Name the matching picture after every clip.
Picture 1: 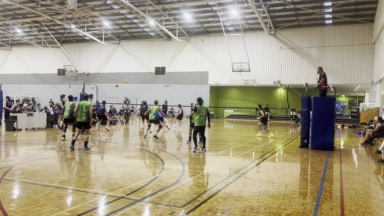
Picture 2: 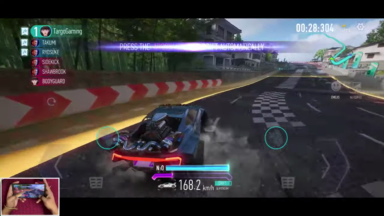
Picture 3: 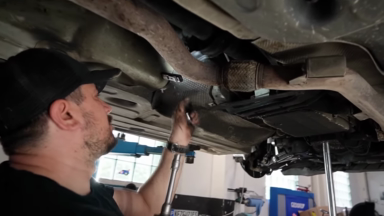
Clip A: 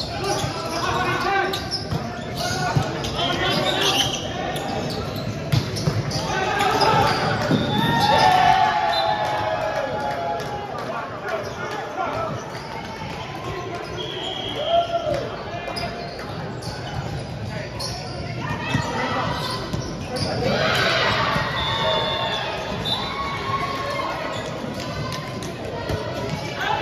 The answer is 1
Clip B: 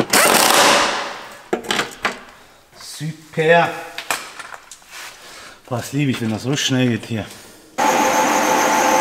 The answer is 3